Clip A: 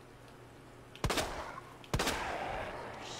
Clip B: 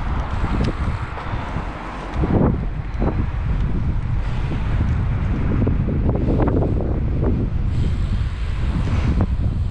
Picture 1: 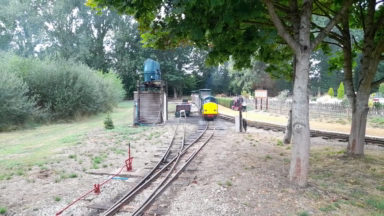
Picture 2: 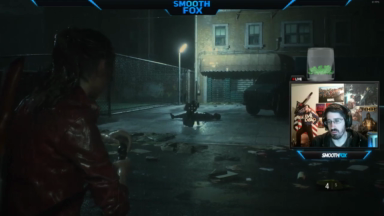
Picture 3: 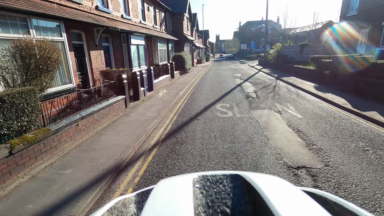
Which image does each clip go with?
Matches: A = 2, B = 3